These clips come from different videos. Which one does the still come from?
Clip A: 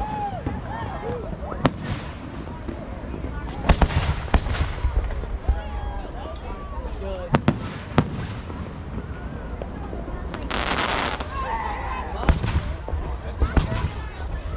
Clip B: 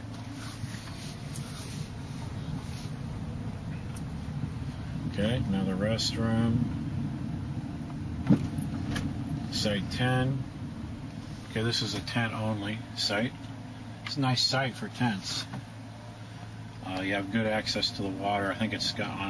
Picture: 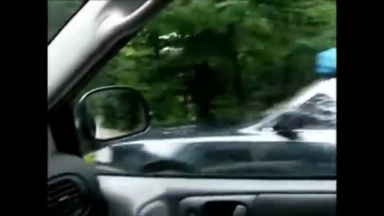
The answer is B